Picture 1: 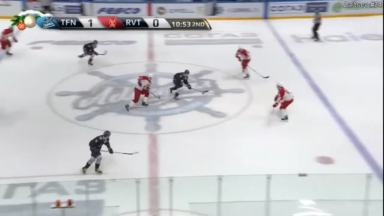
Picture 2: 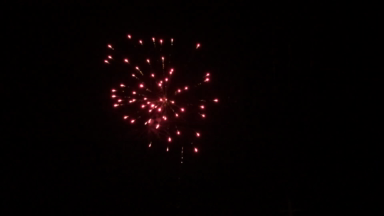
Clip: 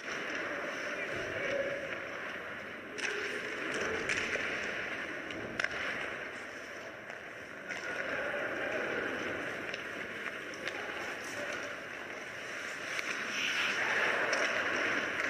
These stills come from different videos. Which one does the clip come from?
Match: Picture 1